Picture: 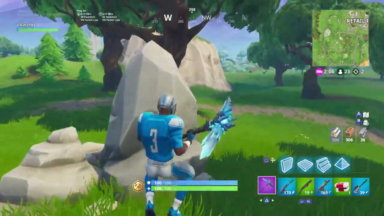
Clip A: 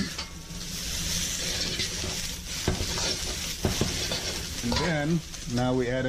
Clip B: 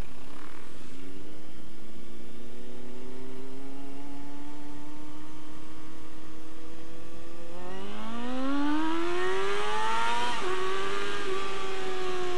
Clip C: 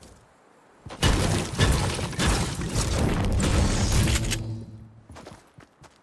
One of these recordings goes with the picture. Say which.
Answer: C